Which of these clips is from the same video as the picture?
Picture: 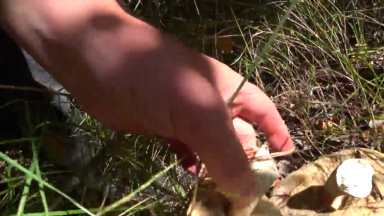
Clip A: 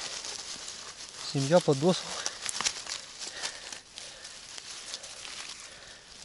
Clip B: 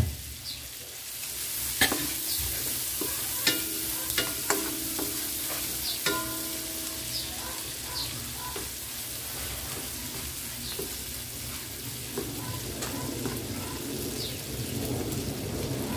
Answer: A